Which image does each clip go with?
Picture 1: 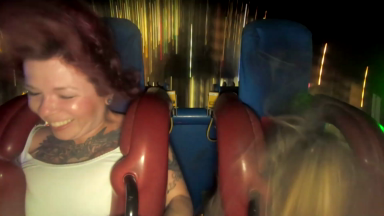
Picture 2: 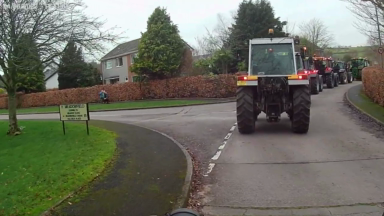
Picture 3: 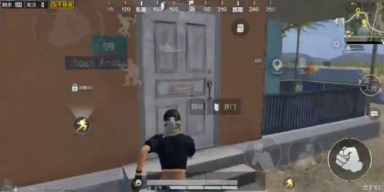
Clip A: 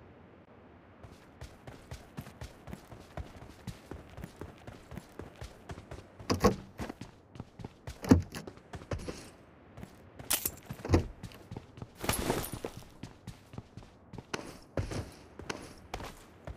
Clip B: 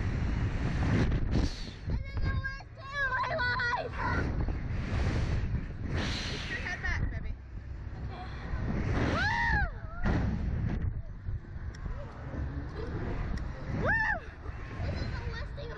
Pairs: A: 3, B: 1